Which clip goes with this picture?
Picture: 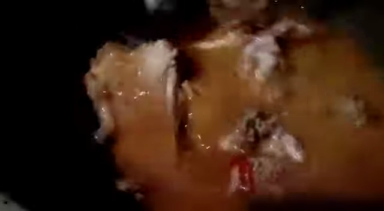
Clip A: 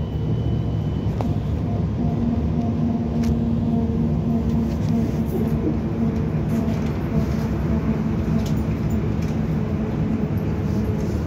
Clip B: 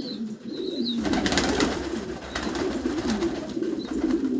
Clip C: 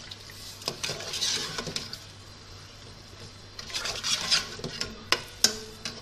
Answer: C